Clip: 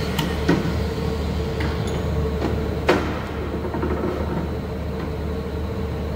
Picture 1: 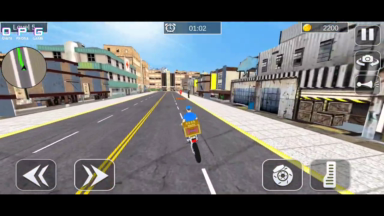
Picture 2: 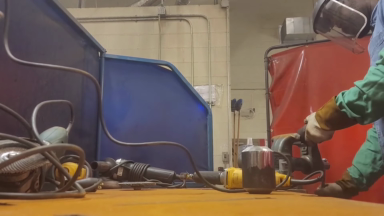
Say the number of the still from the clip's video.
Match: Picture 2